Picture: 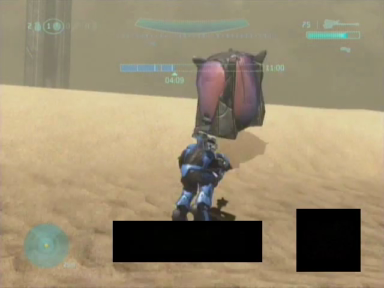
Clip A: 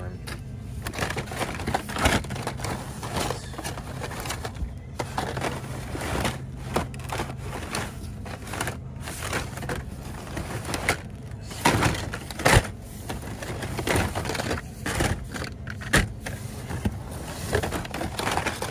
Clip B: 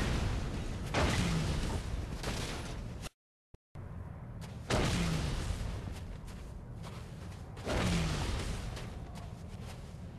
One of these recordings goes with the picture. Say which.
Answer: B